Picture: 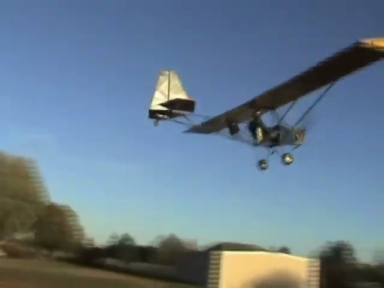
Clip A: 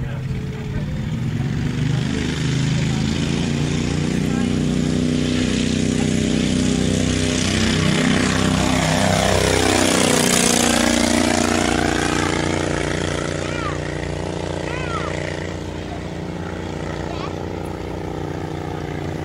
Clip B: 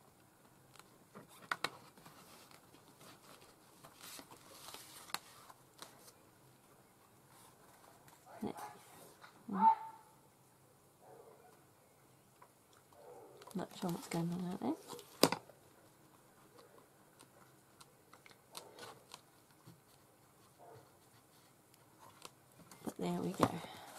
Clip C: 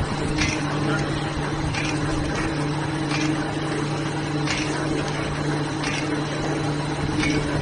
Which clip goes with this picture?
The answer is A